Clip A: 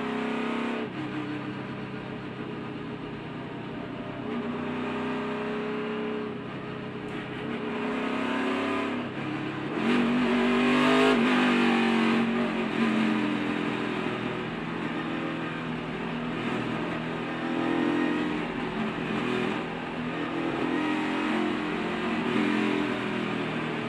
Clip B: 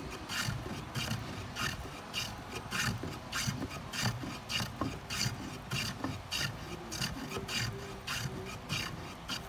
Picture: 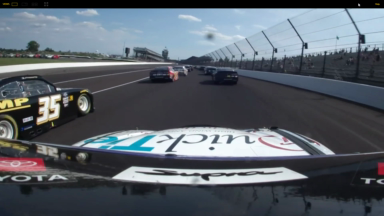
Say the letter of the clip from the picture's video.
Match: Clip A